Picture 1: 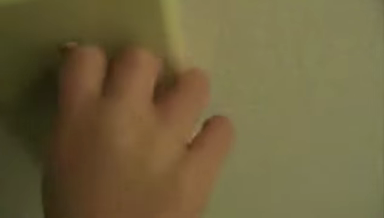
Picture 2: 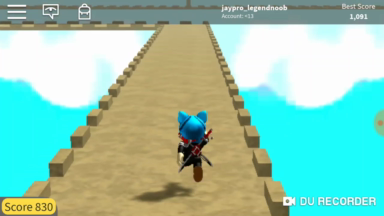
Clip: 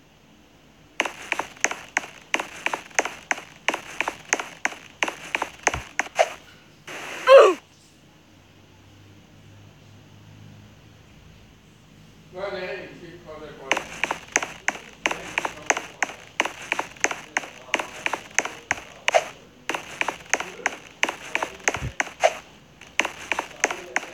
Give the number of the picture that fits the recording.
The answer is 2